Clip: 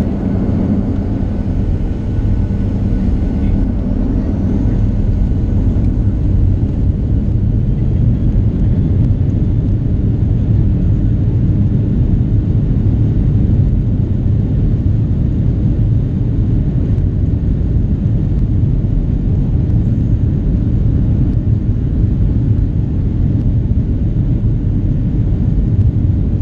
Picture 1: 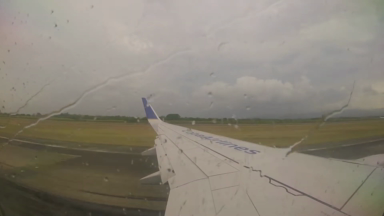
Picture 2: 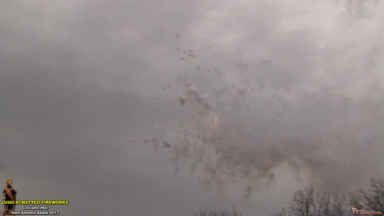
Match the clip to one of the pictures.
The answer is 1